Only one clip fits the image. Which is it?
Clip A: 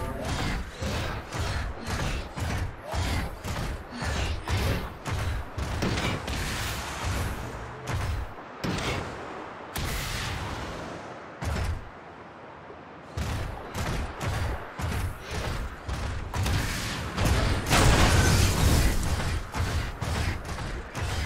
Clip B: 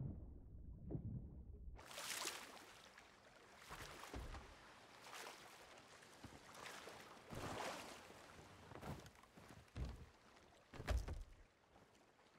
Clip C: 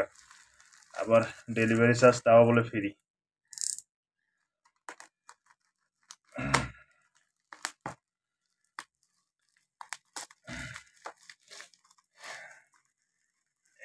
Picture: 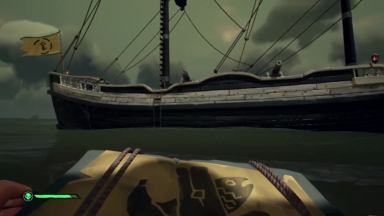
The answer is B